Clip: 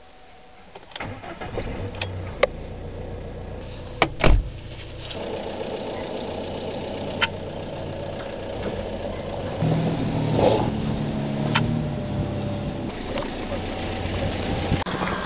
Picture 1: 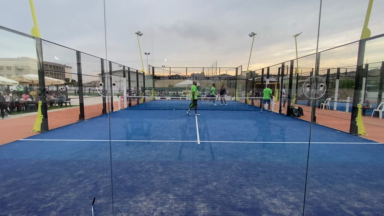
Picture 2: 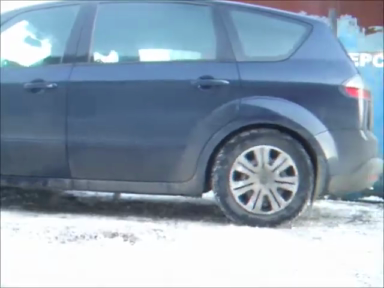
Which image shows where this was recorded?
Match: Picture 2